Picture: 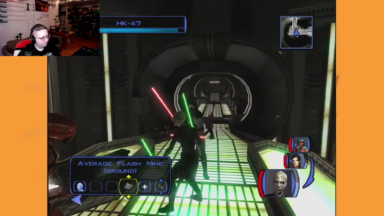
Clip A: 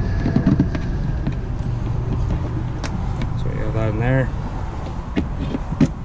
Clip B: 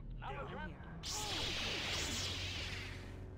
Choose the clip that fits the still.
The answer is B